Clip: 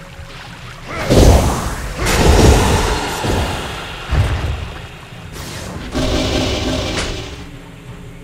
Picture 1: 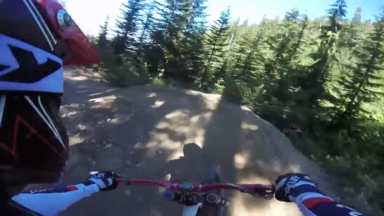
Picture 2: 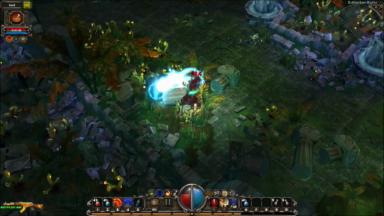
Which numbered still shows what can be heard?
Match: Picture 2